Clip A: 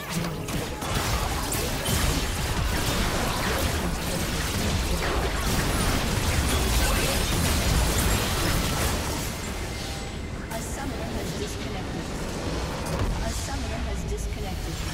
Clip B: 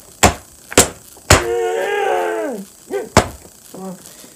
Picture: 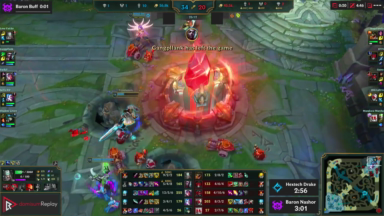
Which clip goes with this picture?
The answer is A